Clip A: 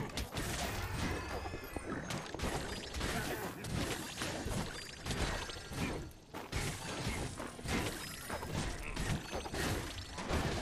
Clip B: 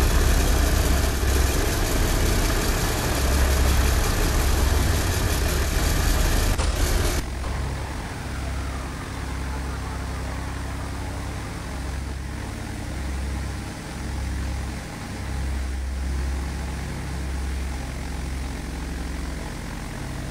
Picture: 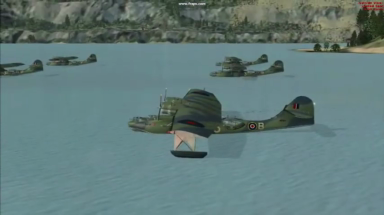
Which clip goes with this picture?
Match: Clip B